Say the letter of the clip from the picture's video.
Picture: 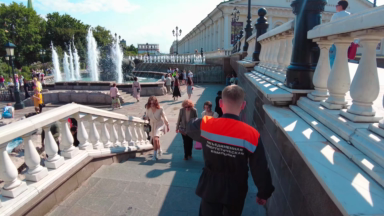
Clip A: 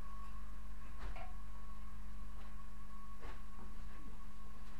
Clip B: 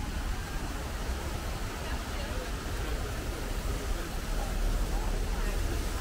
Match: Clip B